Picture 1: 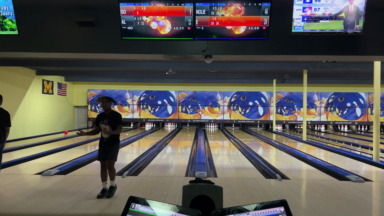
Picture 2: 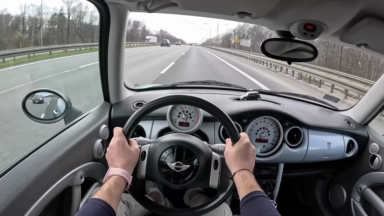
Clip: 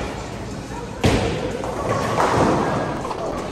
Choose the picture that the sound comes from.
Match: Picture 1